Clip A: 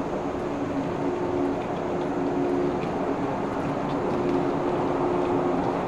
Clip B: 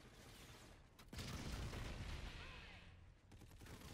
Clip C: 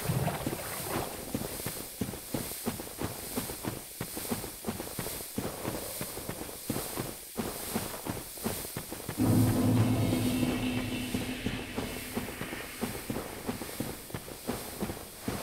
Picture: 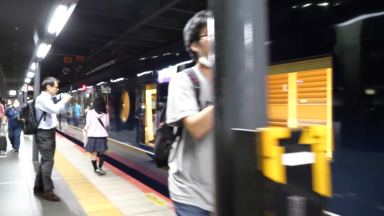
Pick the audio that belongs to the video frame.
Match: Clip A